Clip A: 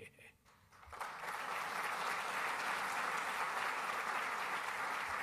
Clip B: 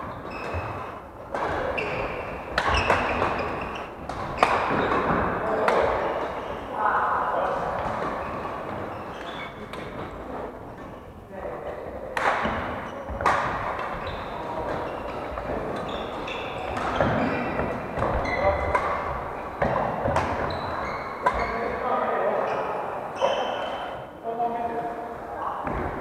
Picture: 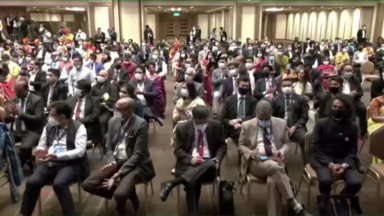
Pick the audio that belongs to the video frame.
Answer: A